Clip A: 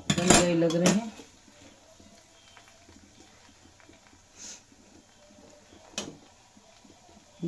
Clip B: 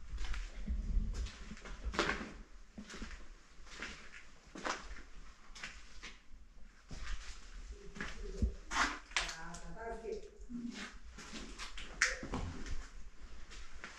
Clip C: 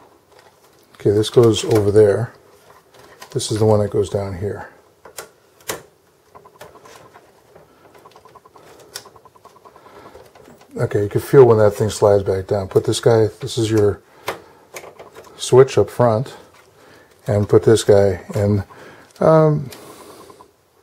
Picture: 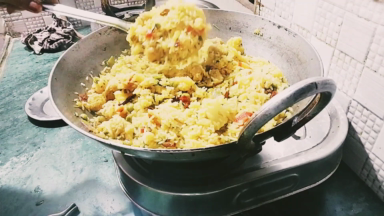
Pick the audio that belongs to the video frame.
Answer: A